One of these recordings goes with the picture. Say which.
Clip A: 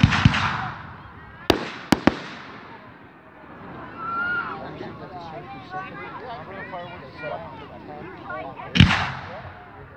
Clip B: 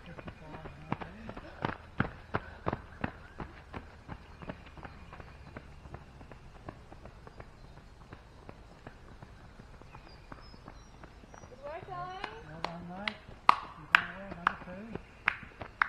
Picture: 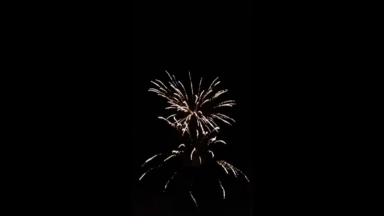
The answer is A